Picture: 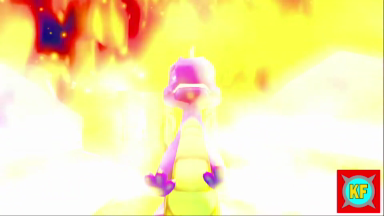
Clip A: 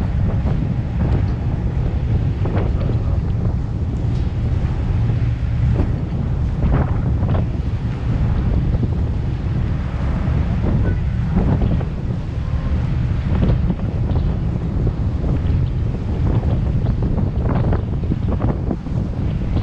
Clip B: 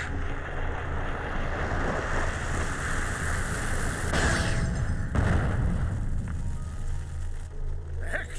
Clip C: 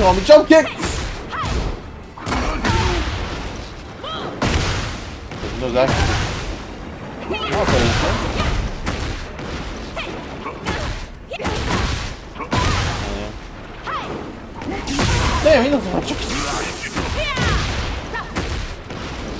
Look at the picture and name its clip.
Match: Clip B